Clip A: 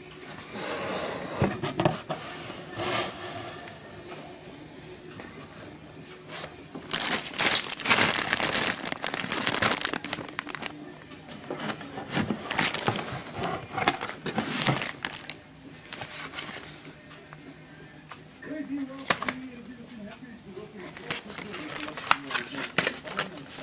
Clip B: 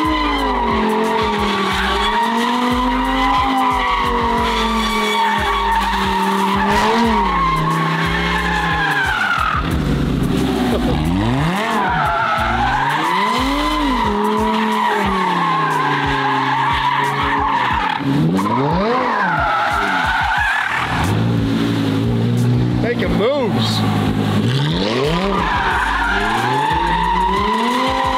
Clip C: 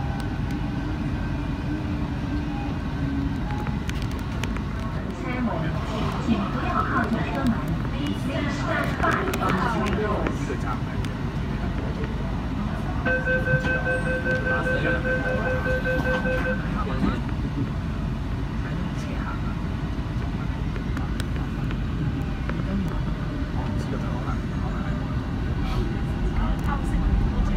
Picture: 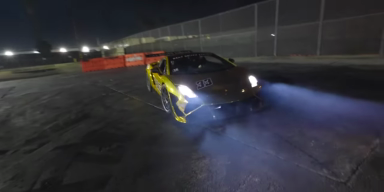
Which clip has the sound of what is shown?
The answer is B